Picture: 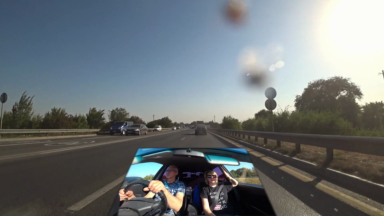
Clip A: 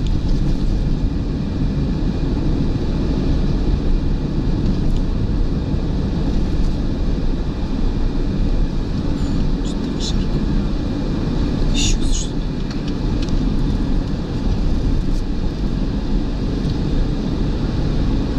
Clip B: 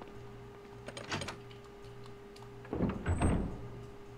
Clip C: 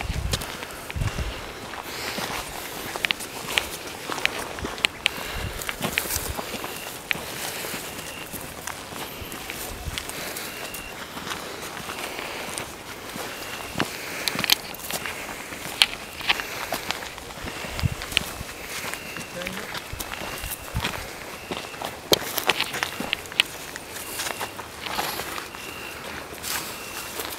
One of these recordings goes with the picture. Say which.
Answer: A